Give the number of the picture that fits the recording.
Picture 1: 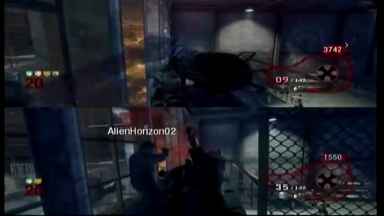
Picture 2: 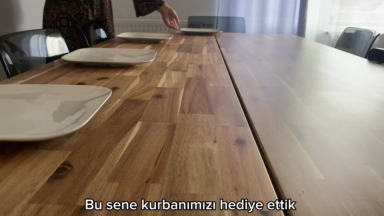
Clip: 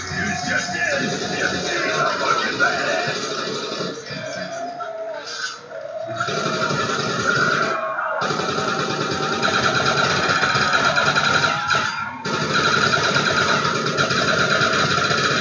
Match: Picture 1